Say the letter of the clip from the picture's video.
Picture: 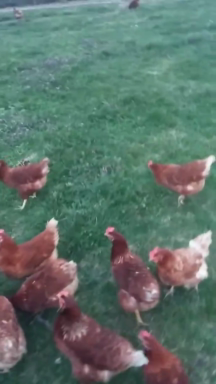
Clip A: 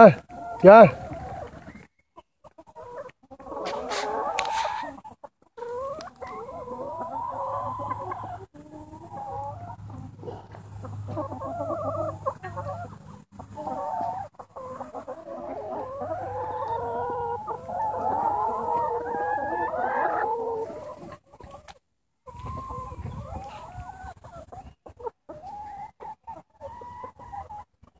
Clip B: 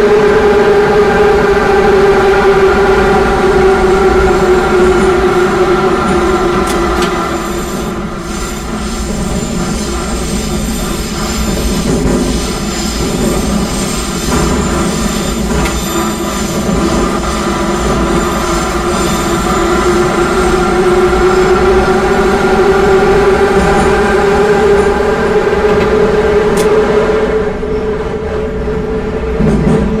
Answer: A